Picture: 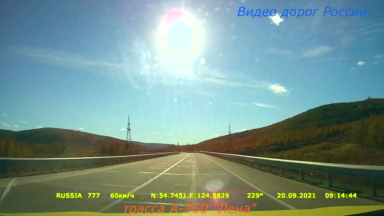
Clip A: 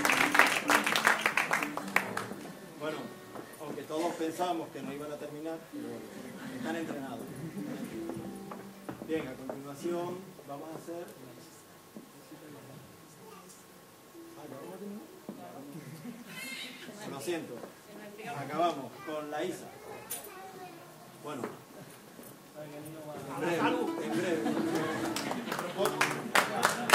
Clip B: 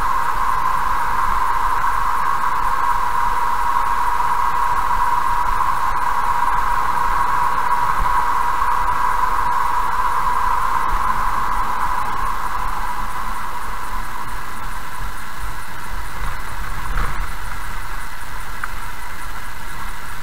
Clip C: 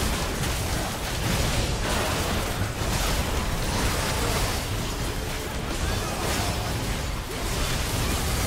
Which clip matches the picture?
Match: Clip B